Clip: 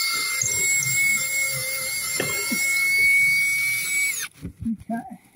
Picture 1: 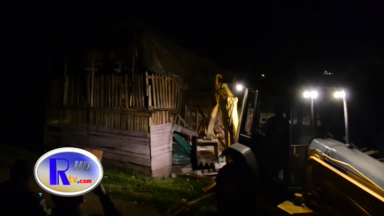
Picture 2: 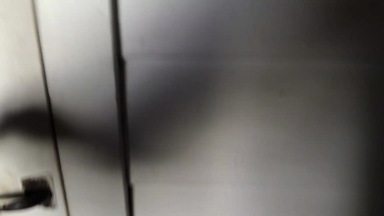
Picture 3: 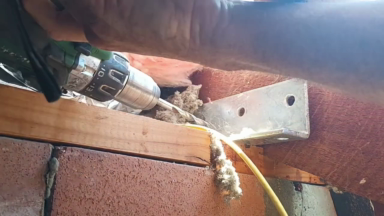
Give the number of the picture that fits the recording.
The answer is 3